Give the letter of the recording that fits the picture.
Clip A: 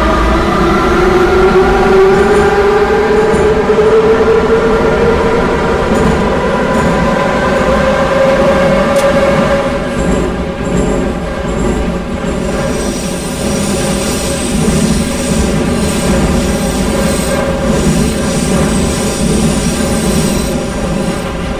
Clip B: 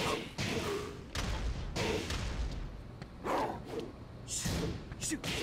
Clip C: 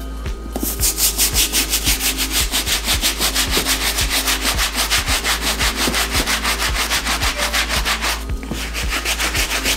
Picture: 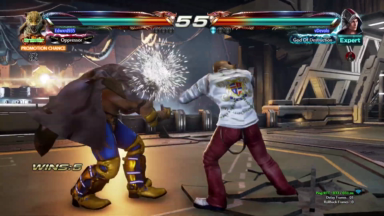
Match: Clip B